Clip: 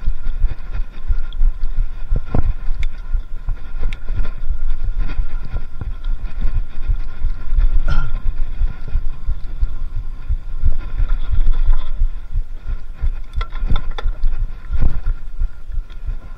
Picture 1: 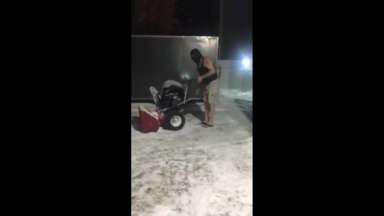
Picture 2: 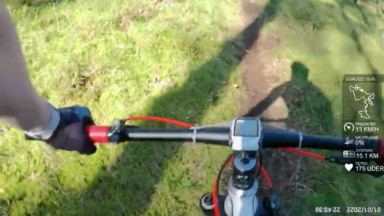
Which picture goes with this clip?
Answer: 2